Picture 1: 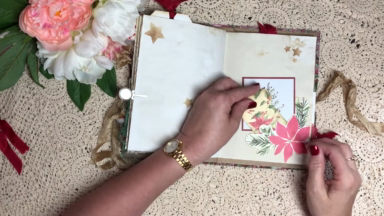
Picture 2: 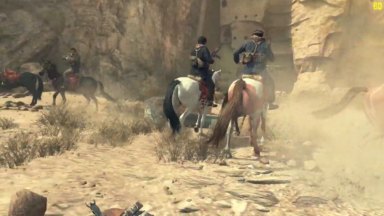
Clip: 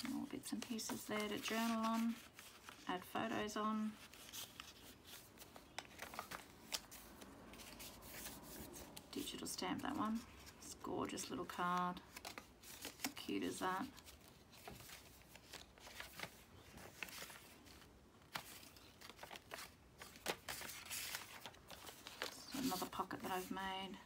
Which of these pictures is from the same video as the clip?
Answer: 1